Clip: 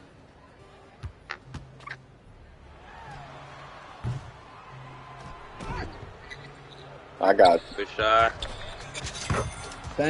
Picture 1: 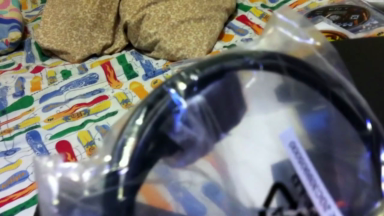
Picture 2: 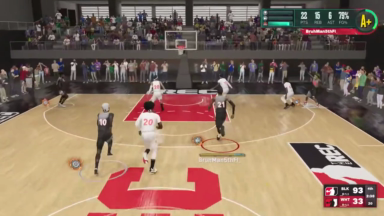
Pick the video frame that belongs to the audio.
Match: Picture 2